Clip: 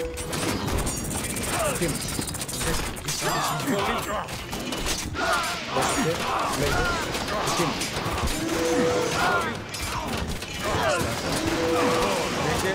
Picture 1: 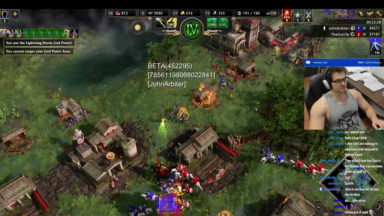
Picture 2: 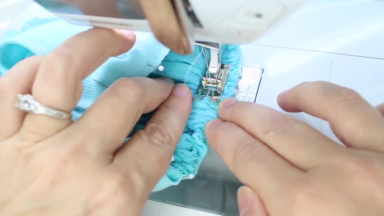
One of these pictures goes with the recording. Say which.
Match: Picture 1